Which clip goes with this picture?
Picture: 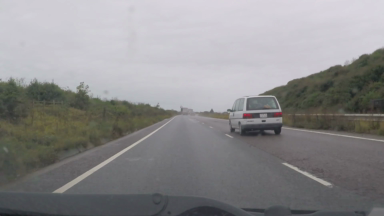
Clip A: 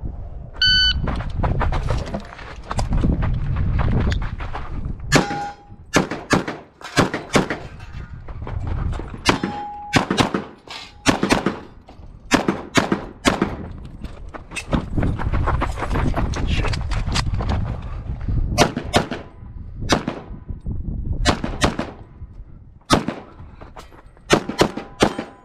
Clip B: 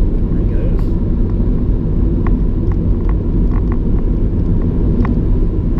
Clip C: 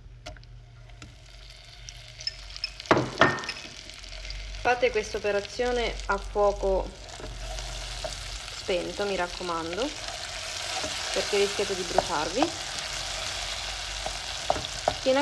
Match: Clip B